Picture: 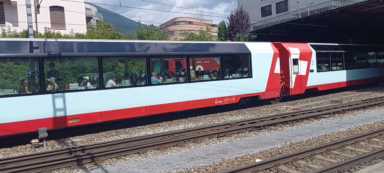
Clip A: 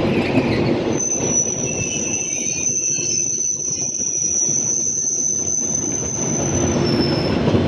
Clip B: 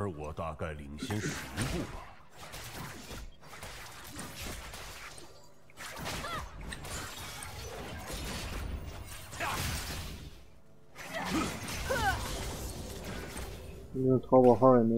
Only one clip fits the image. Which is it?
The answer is A